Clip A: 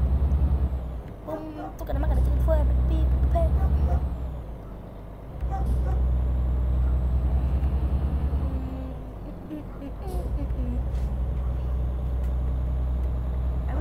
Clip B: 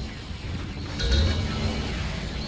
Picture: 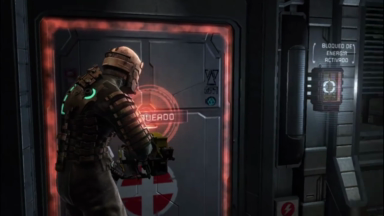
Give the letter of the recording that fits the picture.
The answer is B